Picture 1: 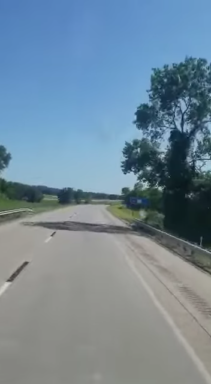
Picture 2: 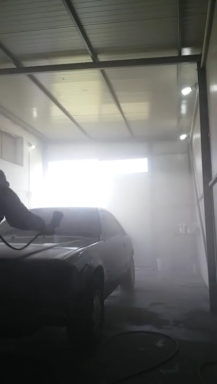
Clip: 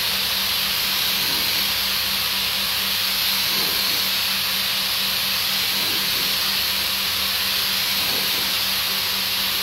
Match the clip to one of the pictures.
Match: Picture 2